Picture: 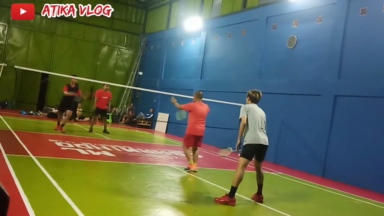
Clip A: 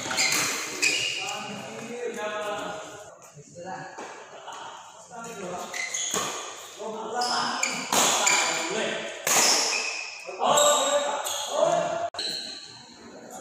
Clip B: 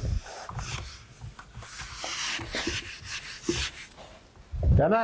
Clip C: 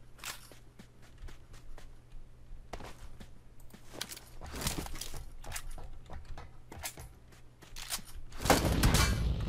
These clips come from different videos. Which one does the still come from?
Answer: A